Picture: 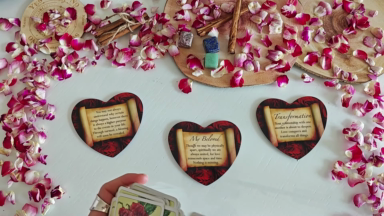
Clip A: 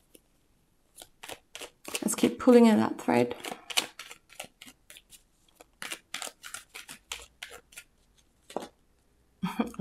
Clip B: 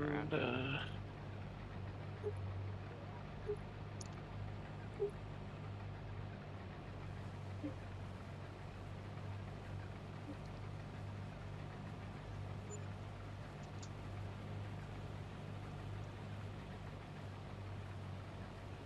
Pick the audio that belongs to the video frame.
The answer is A